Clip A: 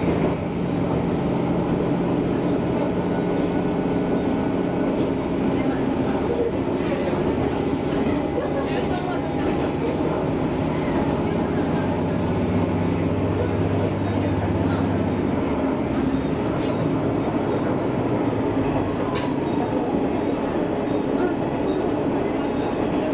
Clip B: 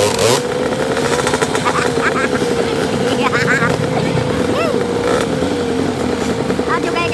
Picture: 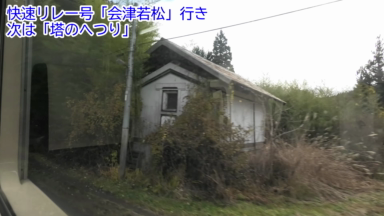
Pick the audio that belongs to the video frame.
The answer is A